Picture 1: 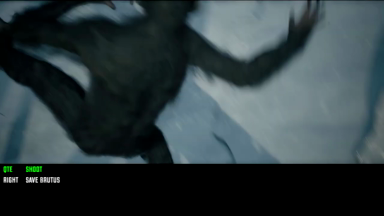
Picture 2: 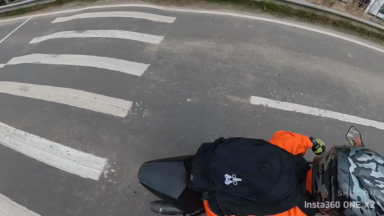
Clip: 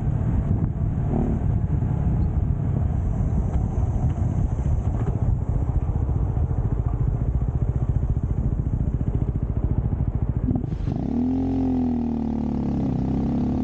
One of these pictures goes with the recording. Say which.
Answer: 2